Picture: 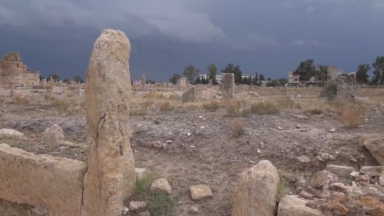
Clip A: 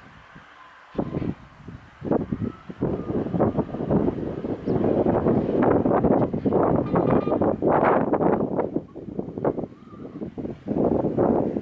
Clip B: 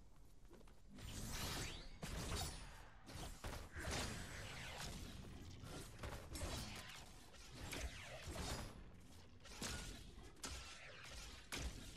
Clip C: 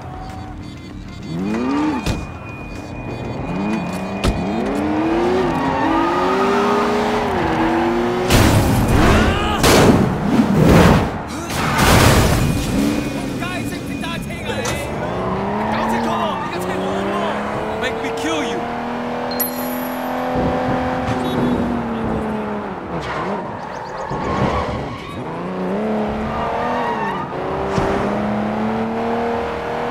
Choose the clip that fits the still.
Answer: A